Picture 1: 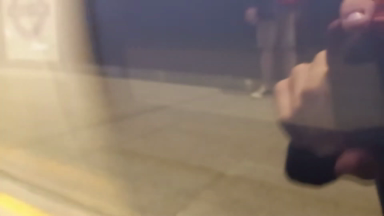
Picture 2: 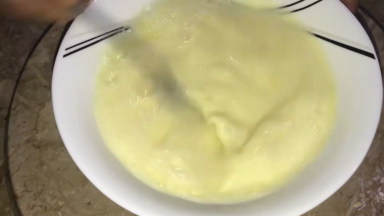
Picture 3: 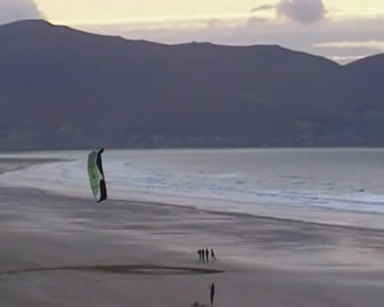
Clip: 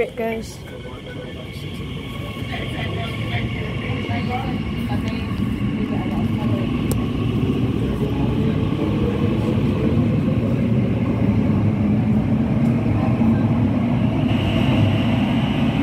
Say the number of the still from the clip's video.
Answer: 1